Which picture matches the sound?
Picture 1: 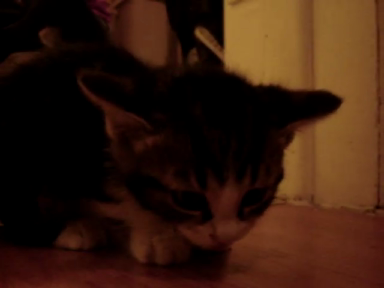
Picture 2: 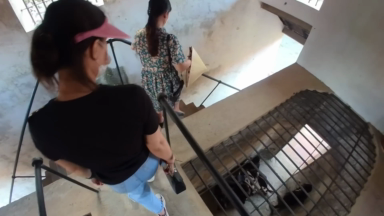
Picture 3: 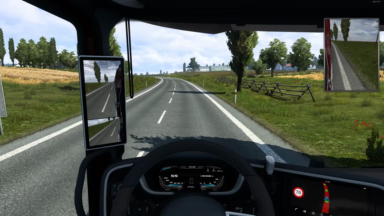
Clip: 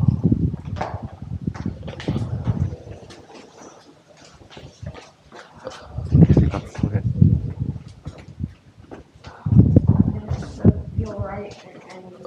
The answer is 2